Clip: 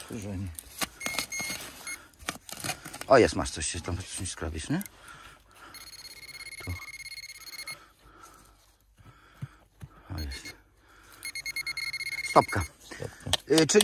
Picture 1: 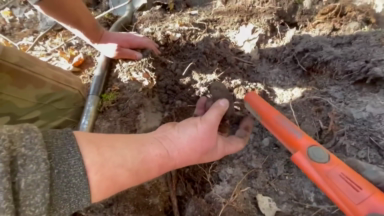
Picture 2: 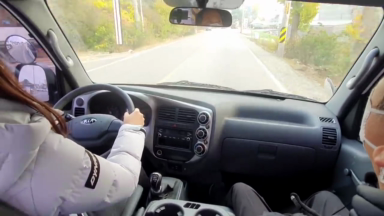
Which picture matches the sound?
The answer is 1